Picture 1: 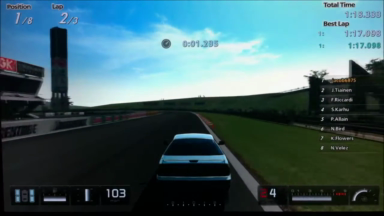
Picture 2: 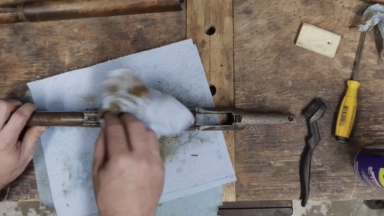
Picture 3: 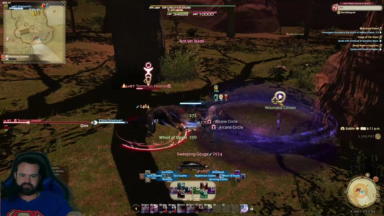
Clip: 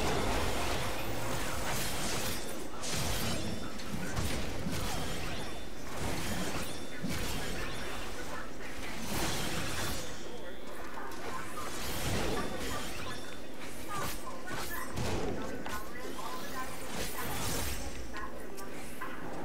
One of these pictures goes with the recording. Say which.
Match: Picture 3